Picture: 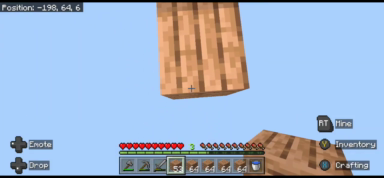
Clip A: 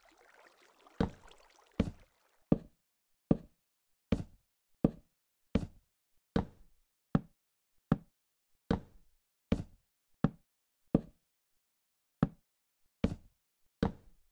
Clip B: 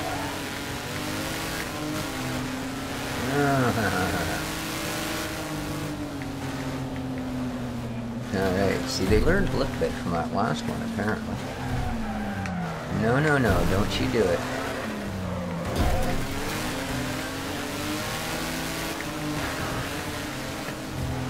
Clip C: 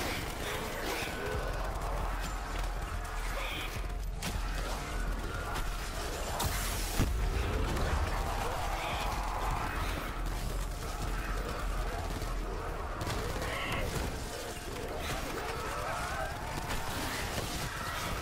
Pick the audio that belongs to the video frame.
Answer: A